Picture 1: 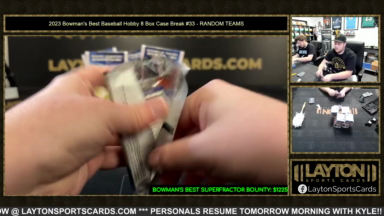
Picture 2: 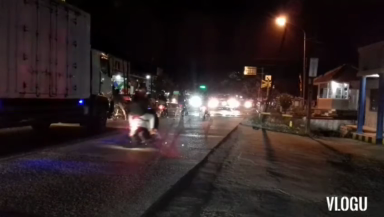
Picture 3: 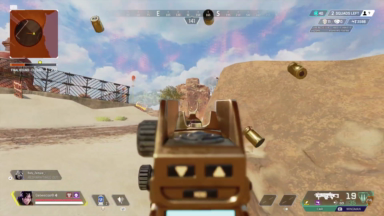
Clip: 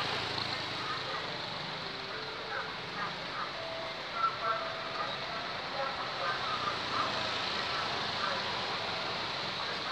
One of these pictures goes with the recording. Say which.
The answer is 2